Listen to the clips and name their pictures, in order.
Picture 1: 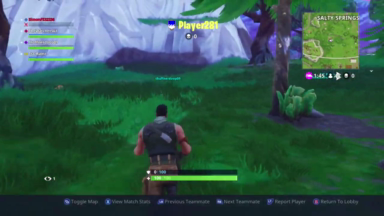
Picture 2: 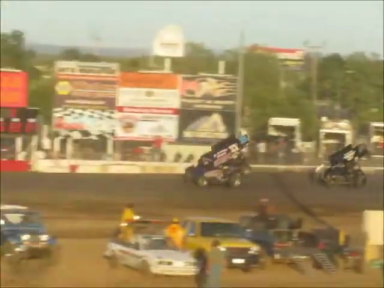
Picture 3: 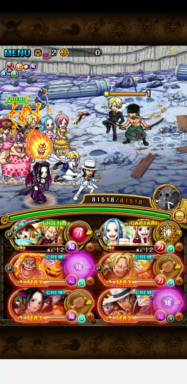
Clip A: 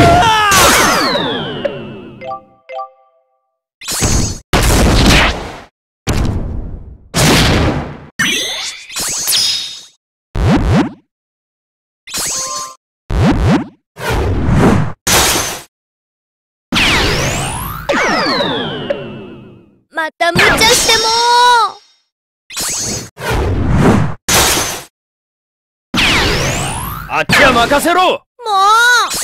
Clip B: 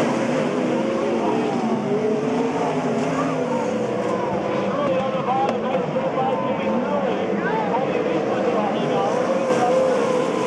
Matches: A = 3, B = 2